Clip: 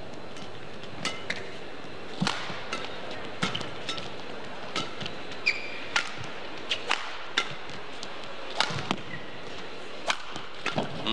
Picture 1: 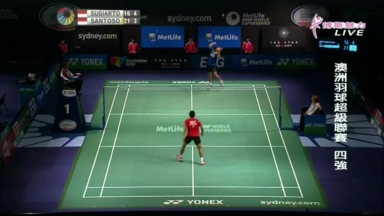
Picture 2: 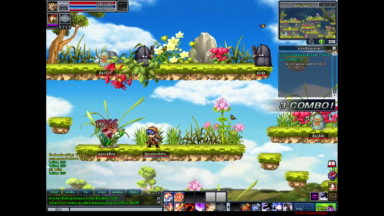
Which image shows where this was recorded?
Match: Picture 1